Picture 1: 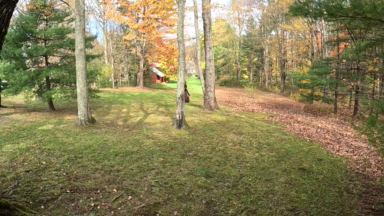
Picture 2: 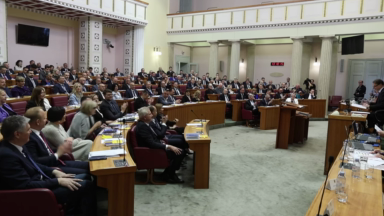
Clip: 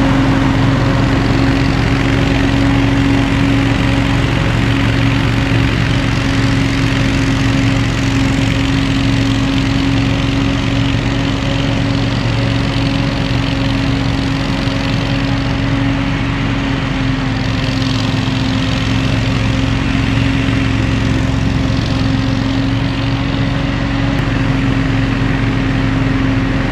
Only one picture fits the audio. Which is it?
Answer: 1